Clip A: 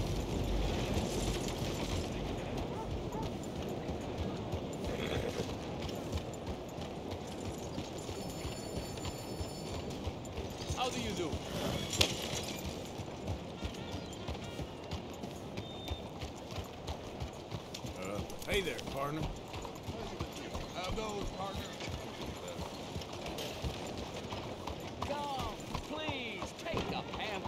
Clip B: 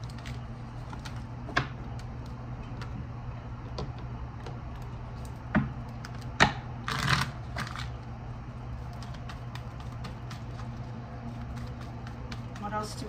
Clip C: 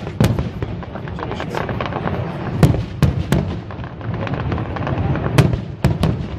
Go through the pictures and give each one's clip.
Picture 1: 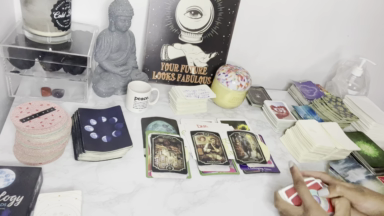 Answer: B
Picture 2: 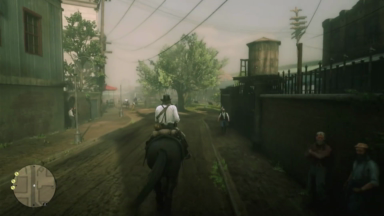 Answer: A